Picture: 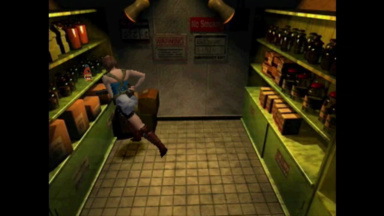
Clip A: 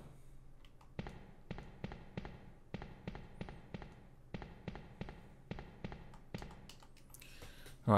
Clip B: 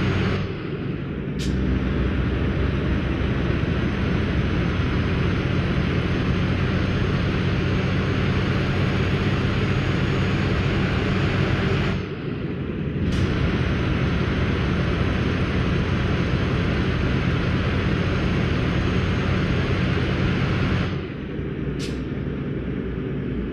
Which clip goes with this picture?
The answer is A